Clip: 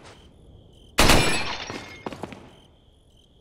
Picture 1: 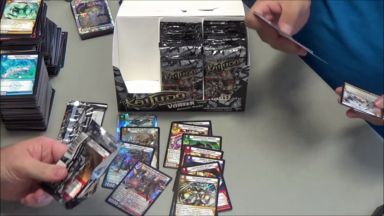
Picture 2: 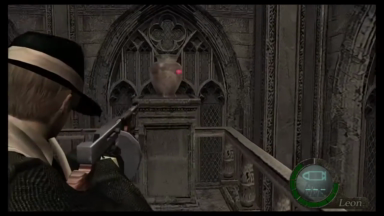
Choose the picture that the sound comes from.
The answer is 2